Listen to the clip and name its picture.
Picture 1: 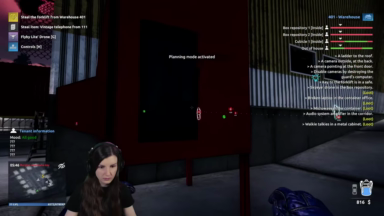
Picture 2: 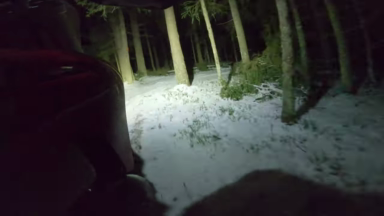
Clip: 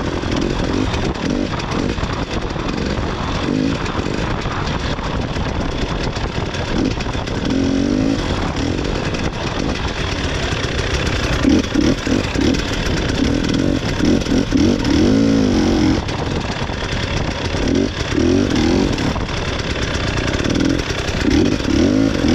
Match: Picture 2